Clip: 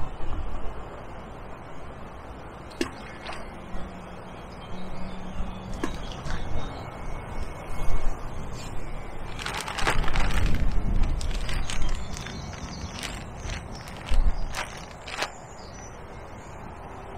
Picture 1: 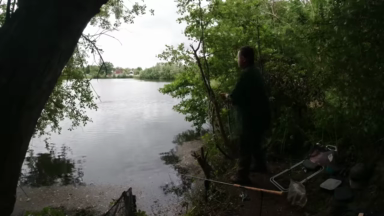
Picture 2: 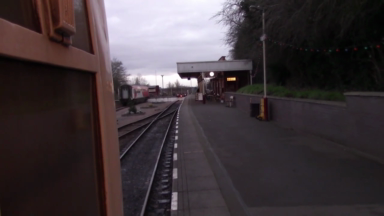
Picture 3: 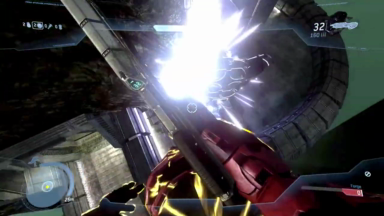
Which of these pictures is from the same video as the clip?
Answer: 1